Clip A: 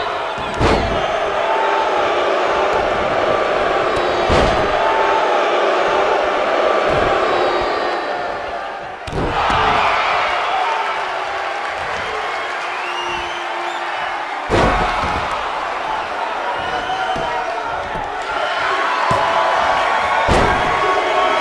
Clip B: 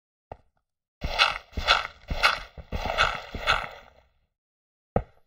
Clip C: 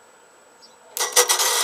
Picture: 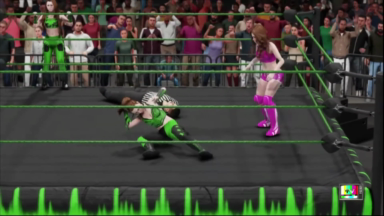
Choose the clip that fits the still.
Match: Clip A